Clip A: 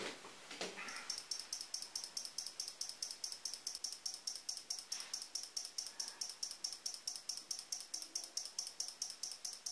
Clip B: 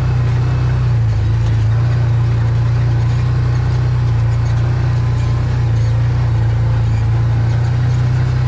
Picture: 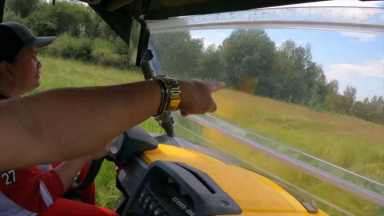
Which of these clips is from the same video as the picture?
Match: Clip B